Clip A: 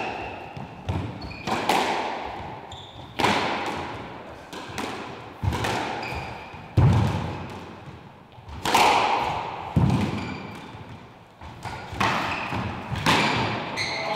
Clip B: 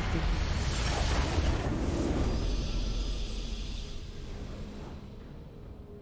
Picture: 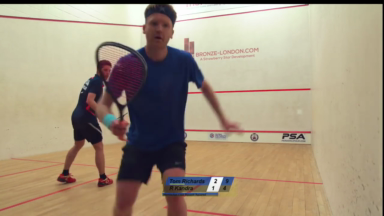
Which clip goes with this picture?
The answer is A